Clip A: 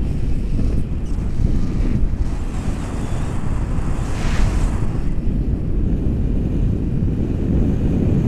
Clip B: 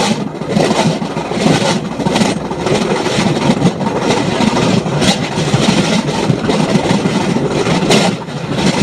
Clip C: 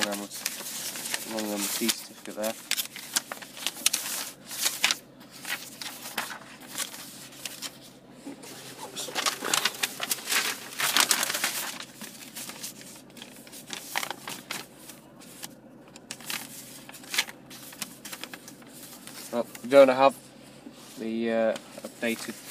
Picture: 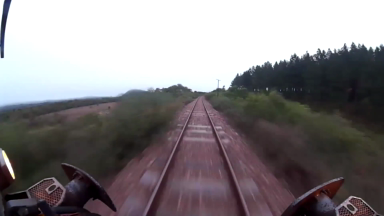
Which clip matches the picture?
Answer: B